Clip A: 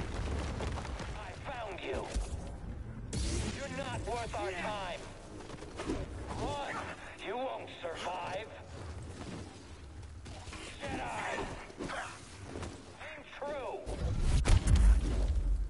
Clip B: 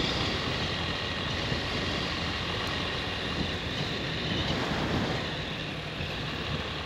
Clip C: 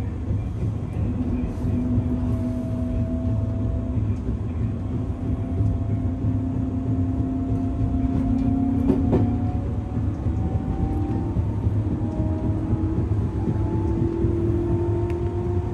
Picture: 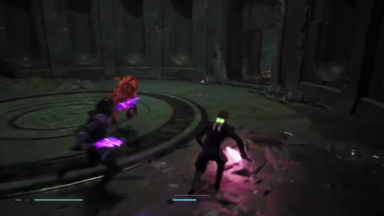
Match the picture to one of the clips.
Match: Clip A